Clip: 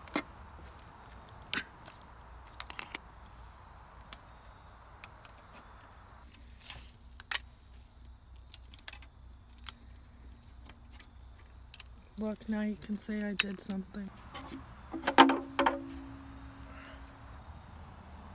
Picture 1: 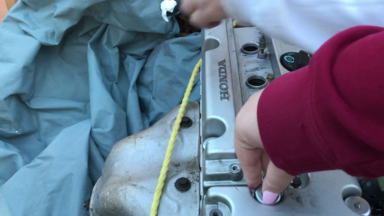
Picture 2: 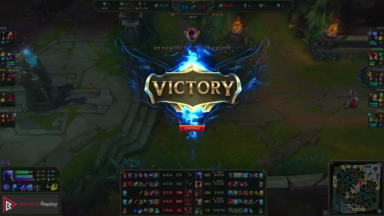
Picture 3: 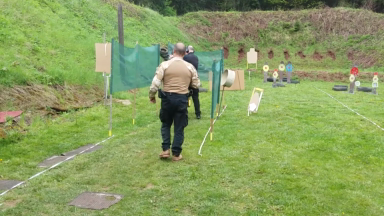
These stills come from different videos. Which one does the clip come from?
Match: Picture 1